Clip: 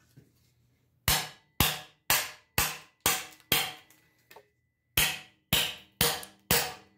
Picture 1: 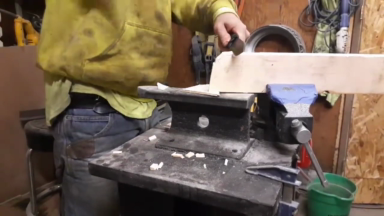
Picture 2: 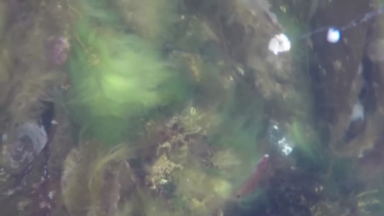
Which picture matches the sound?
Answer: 1